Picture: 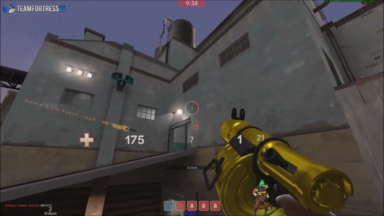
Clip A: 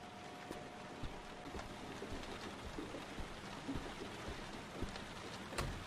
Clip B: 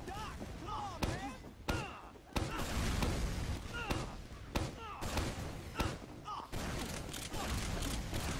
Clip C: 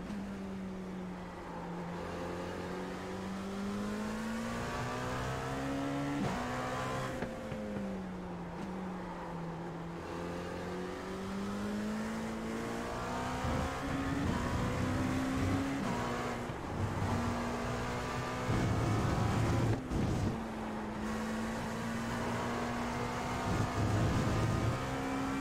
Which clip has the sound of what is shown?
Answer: B